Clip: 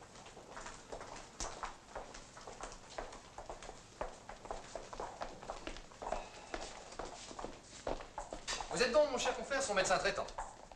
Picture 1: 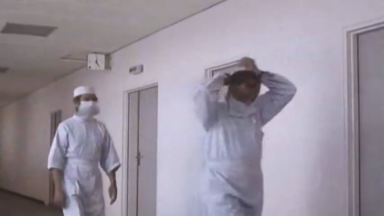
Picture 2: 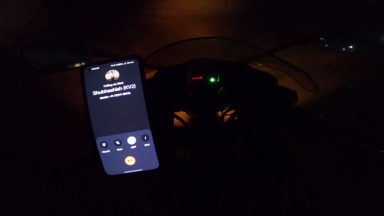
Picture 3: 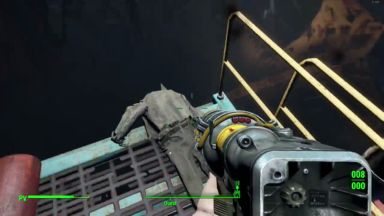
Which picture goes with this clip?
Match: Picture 1